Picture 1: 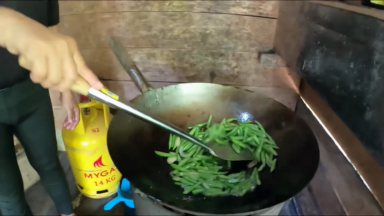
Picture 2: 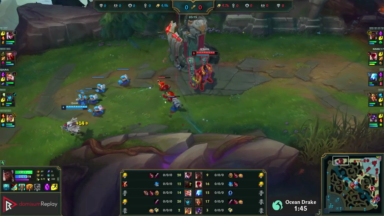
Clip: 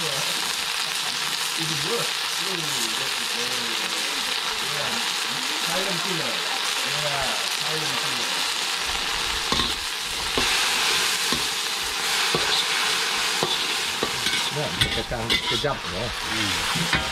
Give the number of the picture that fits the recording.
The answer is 1